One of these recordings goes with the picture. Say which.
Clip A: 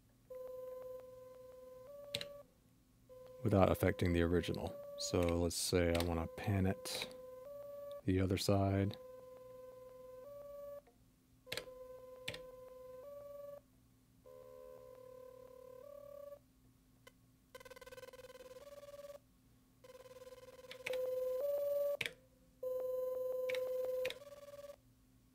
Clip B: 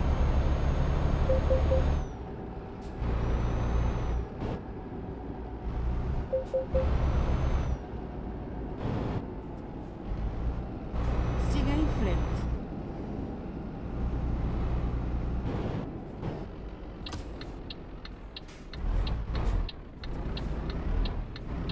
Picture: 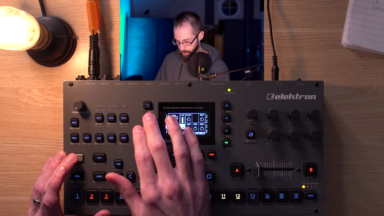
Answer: A